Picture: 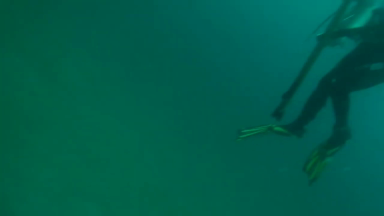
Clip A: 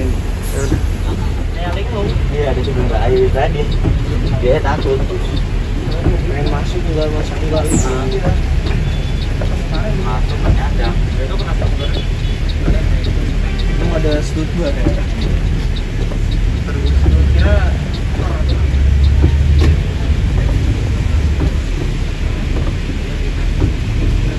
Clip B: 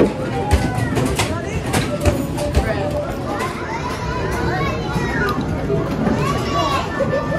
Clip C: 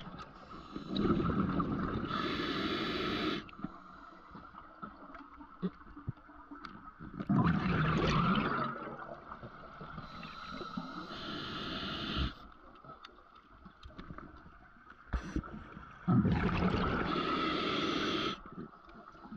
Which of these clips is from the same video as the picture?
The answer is C